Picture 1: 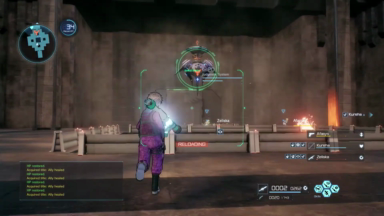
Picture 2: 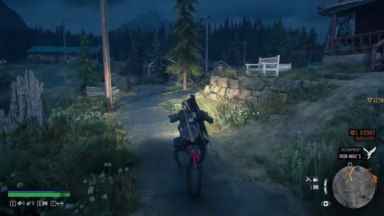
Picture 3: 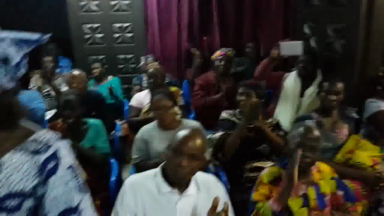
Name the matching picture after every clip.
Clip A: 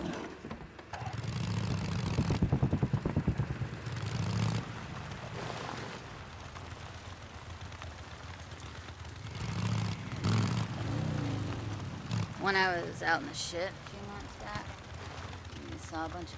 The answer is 2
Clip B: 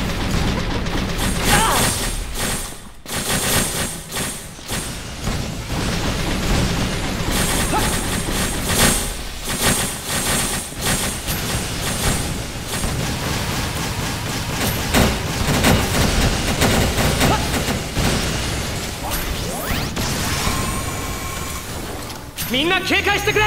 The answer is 1